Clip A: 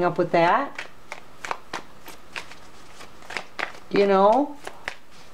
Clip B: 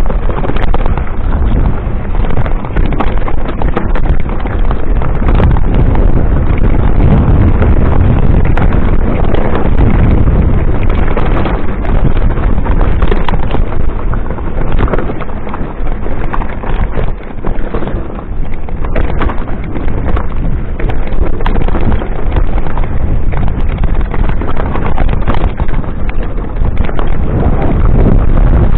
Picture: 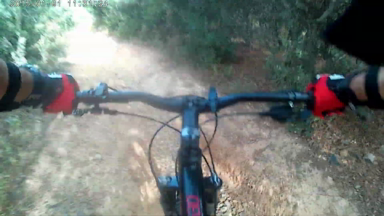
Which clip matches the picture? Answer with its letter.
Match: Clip B